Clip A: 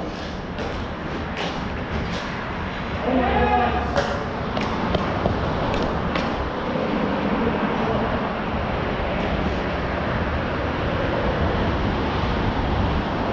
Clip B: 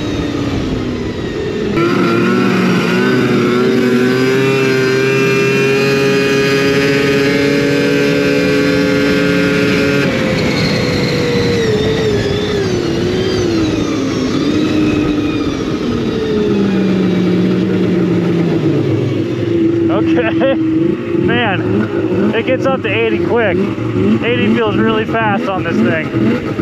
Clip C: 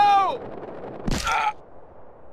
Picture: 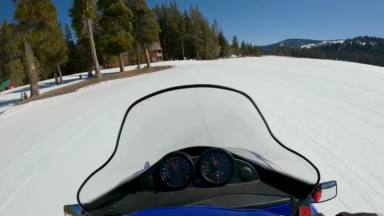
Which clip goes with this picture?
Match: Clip B